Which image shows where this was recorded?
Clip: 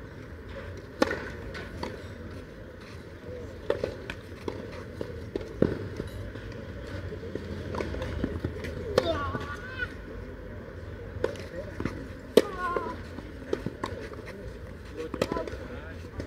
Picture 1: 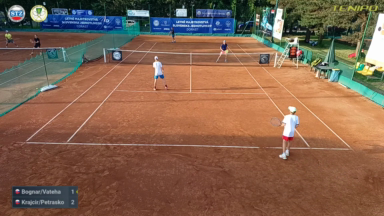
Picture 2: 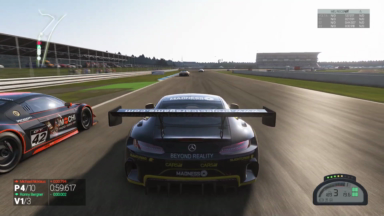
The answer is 1